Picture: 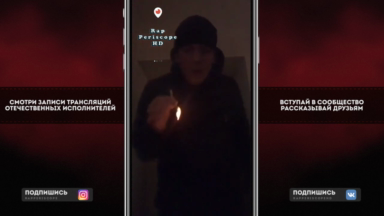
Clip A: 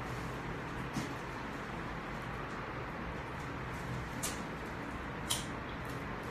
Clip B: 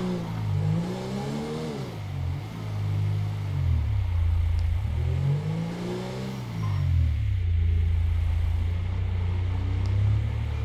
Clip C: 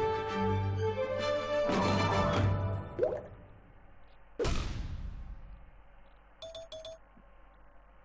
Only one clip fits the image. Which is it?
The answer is A